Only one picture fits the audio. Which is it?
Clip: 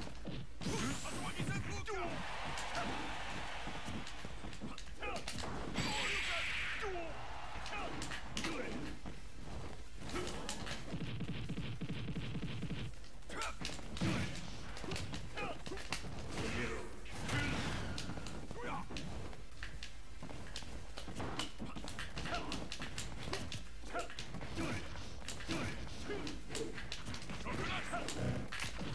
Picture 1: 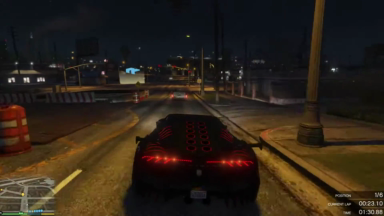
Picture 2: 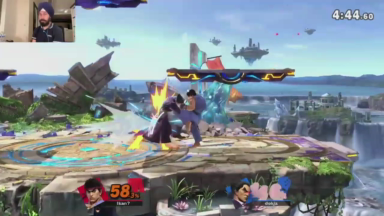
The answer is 2